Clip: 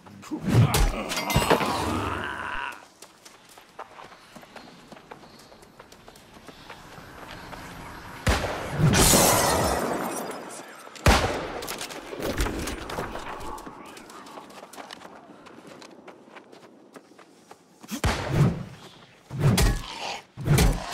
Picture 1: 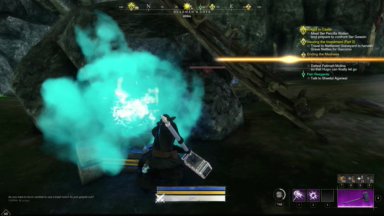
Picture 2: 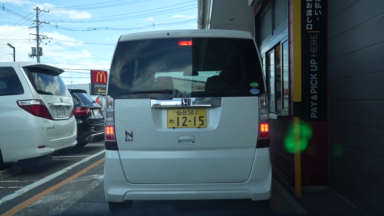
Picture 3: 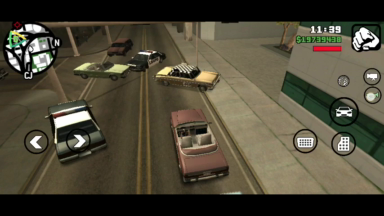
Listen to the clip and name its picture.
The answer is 1